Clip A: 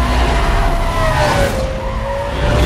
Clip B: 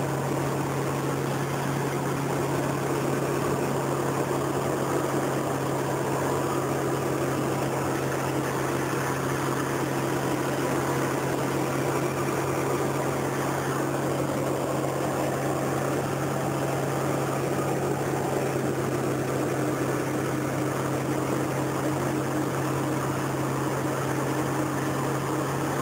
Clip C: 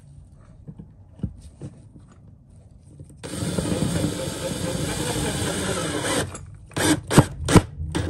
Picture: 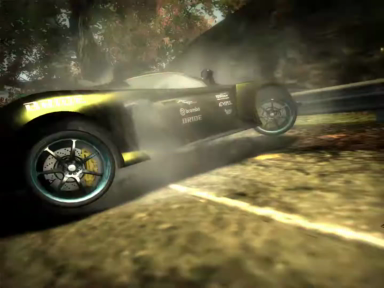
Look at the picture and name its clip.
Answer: A